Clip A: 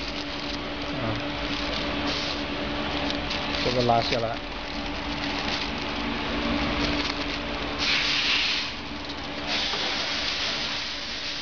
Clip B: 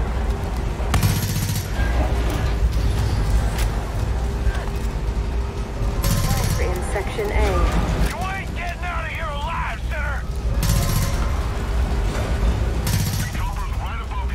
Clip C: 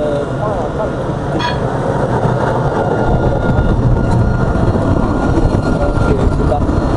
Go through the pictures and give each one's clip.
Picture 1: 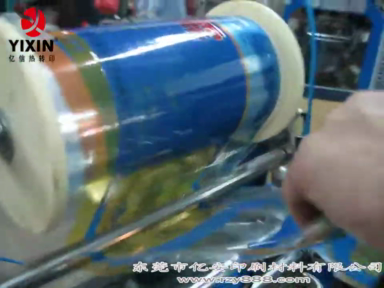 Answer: A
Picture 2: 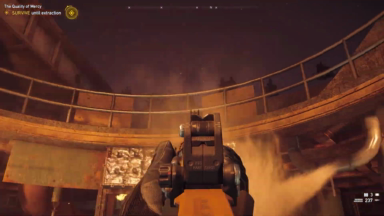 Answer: B